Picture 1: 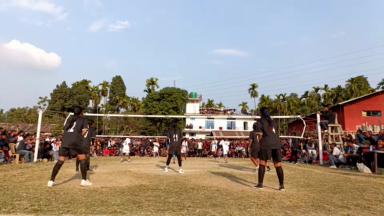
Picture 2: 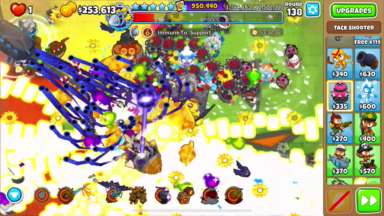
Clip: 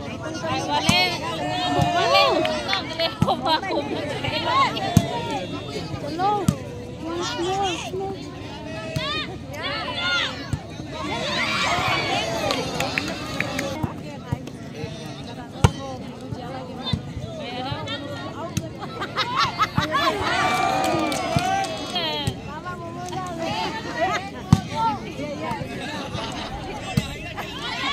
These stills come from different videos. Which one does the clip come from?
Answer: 1